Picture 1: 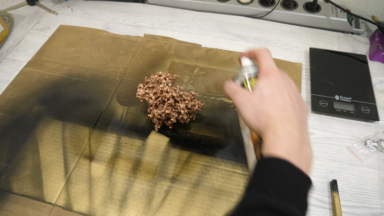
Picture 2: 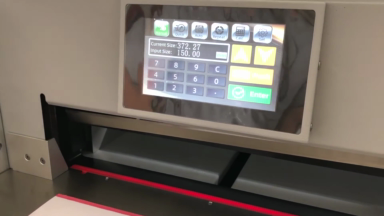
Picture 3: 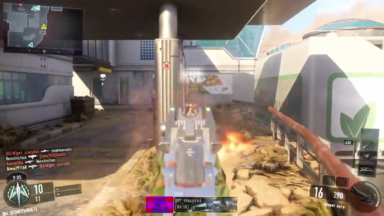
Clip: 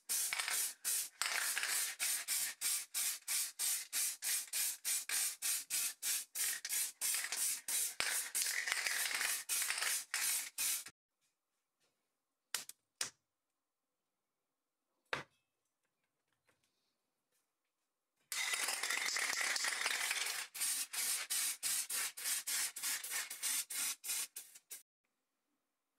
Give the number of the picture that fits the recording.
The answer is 1